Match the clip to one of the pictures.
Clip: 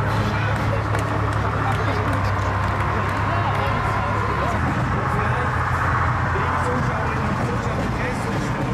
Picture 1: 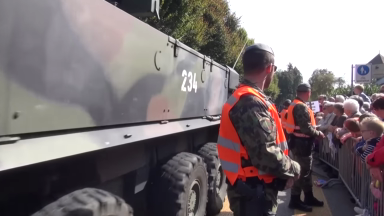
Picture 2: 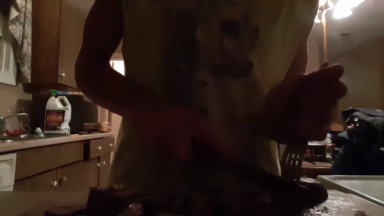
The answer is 1